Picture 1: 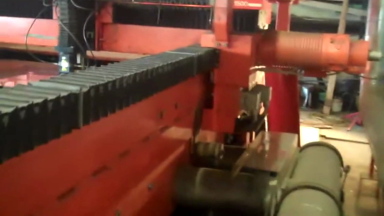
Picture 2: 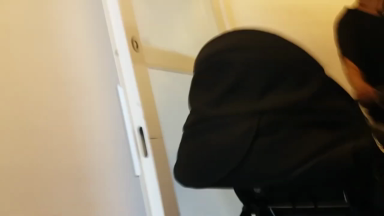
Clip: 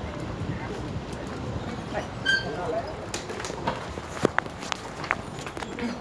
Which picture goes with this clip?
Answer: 2